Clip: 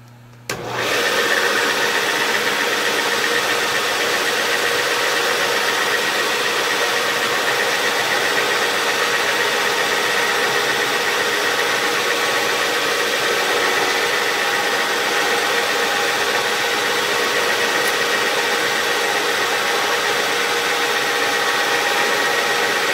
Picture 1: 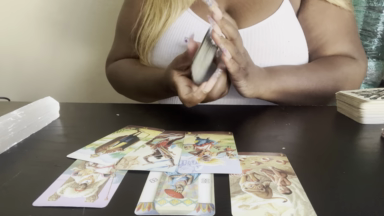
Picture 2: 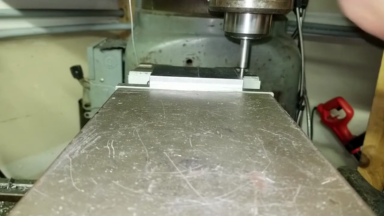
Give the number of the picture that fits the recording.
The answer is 2